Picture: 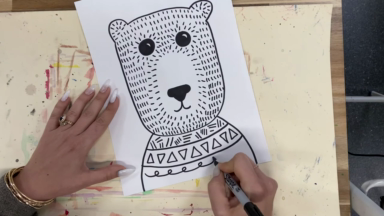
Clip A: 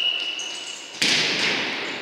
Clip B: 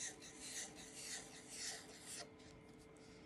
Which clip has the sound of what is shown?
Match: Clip B